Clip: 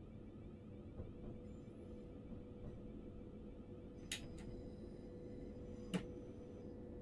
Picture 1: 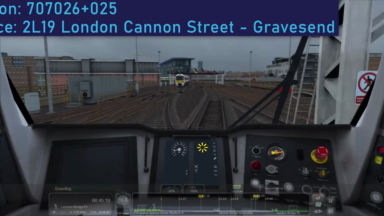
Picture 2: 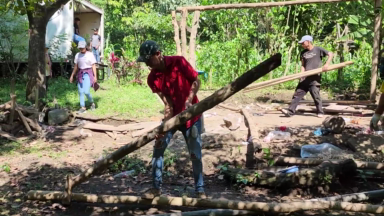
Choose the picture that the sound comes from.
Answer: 1